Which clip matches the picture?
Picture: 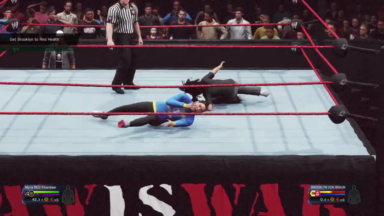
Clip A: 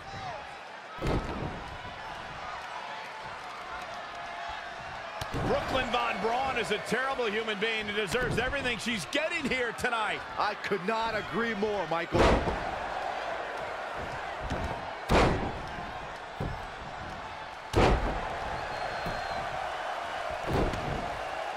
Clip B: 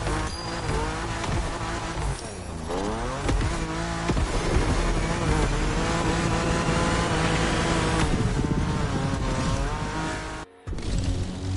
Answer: A